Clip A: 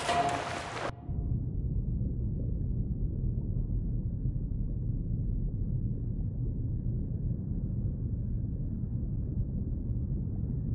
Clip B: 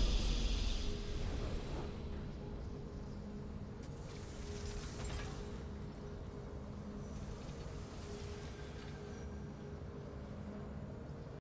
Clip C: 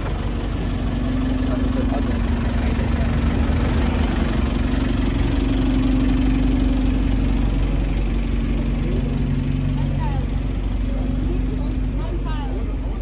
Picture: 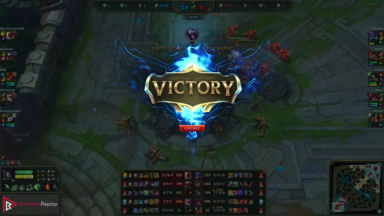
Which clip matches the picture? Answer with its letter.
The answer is B